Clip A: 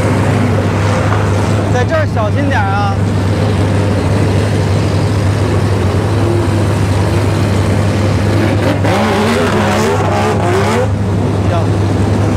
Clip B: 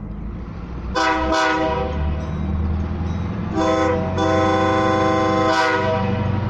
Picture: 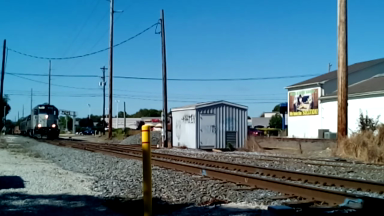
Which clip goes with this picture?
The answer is B